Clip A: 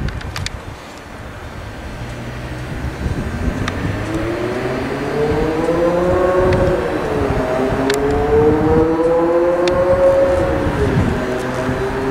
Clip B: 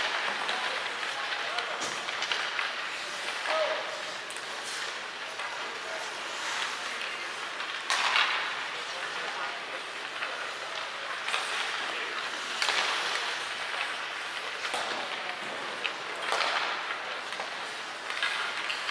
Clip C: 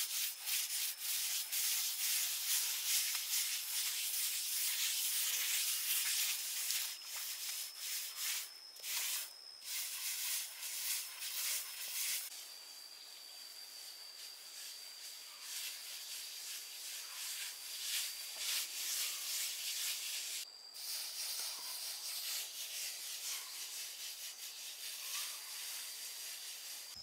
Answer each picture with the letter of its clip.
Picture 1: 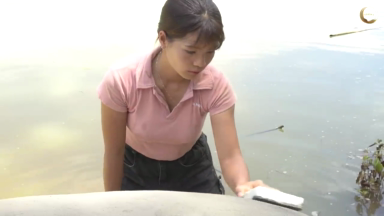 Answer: C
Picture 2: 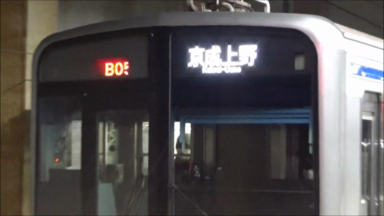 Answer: A